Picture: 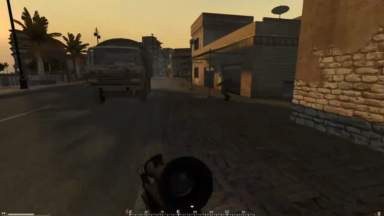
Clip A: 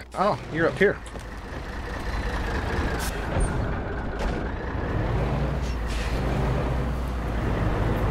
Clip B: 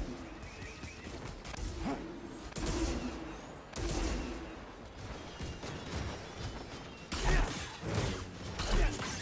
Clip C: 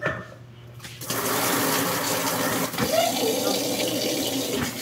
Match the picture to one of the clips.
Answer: A